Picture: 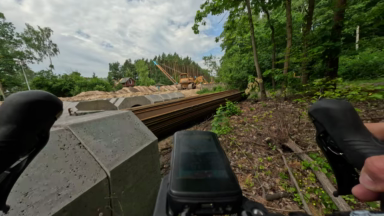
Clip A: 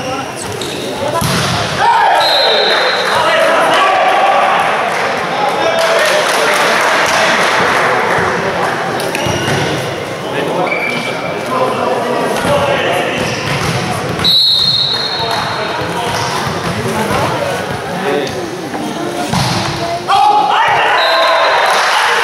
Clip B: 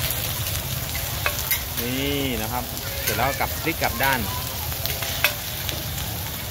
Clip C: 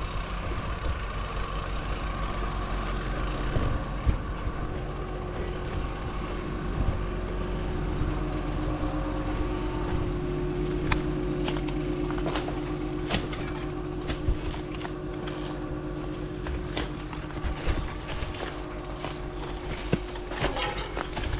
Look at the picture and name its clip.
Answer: C